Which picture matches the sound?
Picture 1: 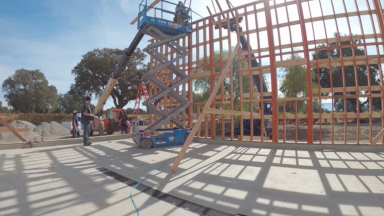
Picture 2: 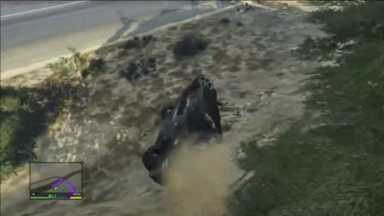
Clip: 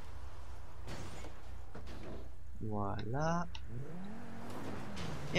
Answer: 2